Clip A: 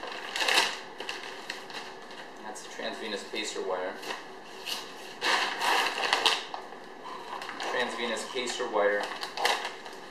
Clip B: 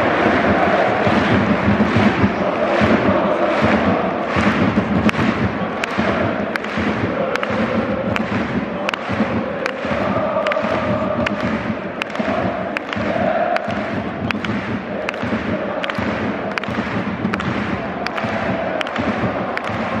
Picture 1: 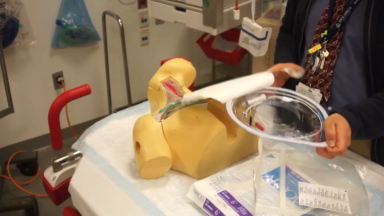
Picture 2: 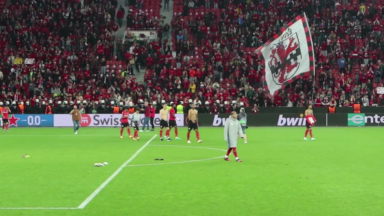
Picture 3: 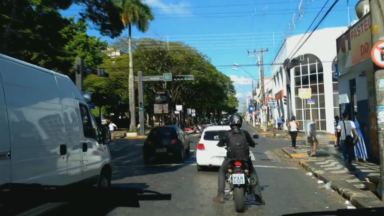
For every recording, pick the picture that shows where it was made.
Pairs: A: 1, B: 2